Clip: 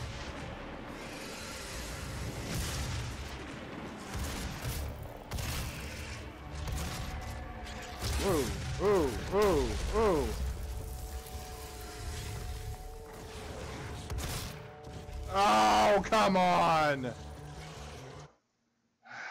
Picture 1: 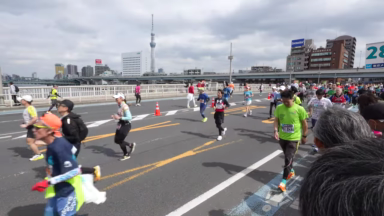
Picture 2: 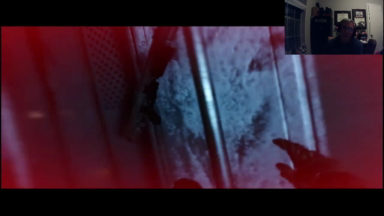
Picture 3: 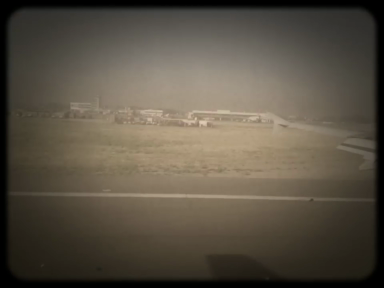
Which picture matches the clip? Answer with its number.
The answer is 2